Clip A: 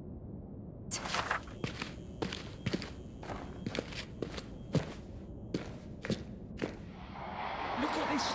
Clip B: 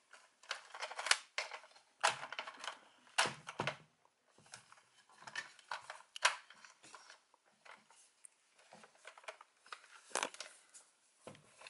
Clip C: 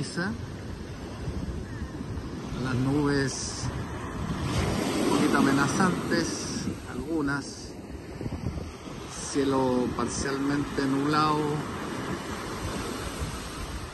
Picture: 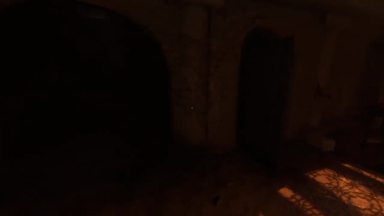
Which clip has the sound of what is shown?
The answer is A